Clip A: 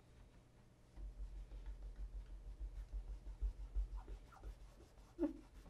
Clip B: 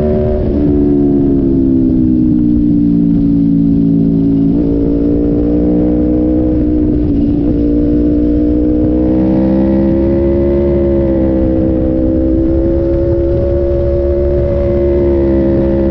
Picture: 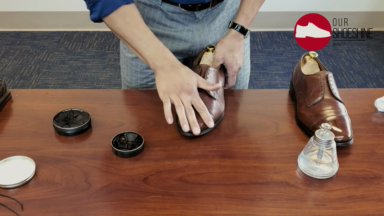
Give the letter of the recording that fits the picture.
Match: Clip A